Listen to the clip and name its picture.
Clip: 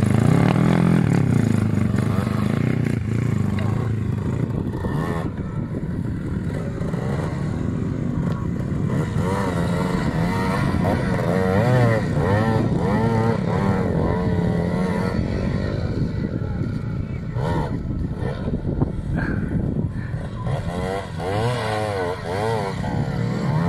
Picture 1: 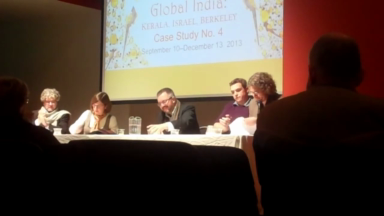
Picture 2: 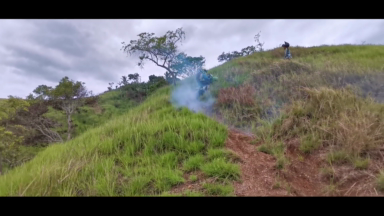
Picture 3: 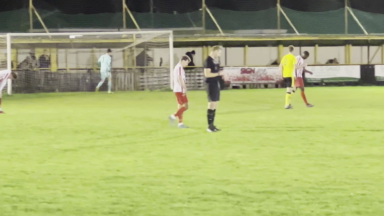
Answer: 2